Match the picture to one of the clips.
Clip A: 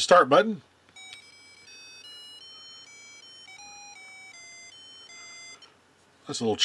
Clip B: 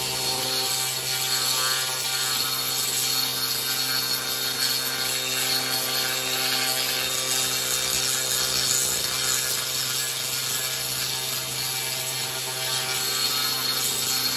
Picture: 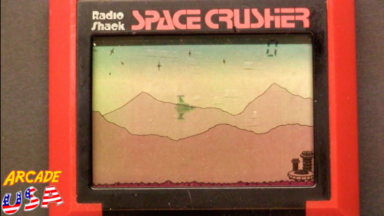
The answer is A